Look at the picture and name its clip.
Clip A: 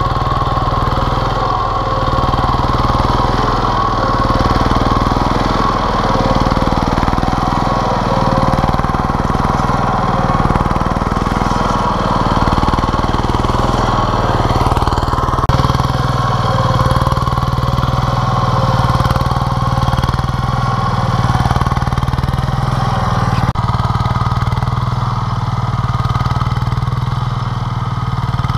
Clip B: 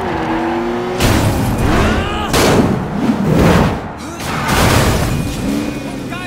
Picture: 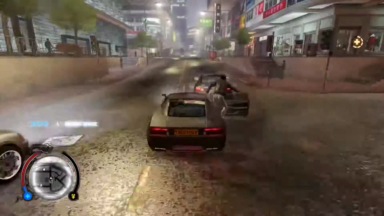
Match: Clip B